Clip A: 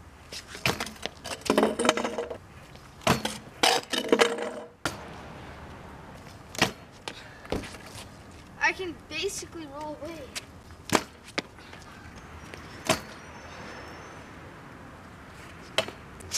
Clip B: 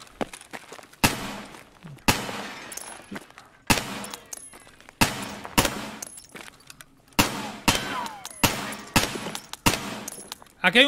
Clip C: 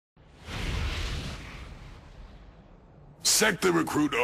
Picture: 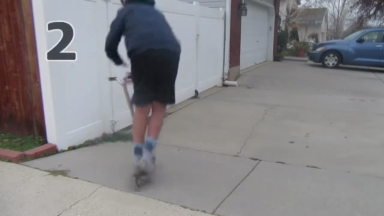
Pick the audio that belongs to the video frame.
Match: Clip A